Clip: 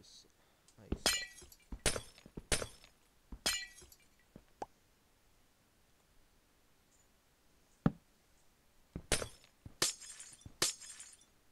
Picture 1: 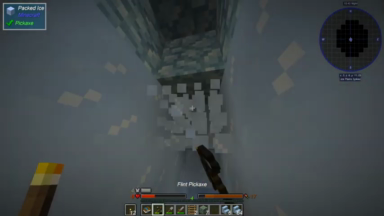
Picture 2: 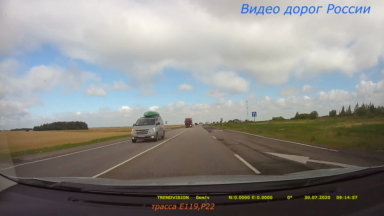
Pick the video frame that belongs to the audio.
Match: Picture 1